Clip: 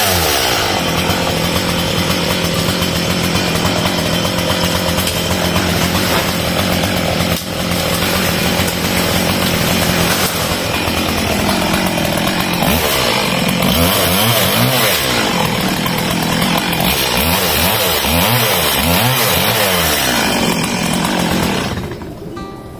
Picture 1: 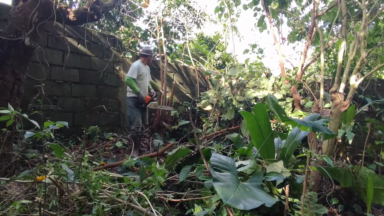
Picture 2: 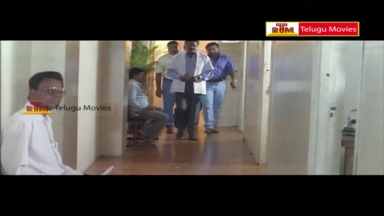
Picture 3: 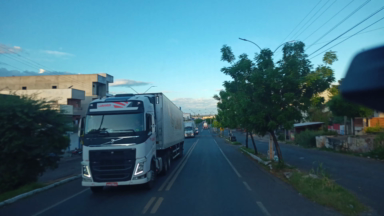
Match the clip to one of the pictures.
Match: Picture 1